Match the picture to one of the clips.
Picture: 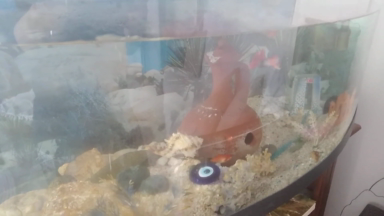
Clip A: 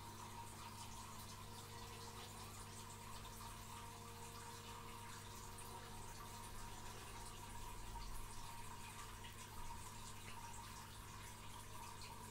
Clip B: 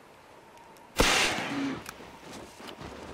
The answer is A